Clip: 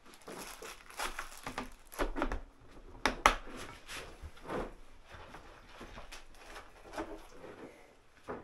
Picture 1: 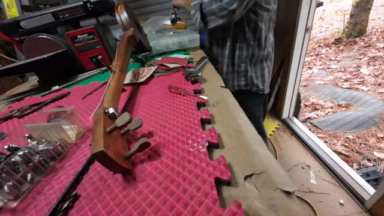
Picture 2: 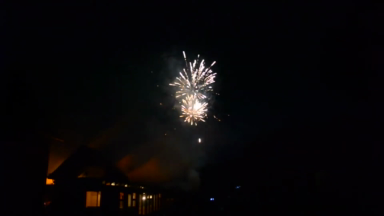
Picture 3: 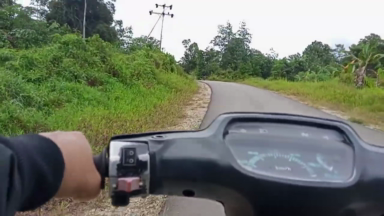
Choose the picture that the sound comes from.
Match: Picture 1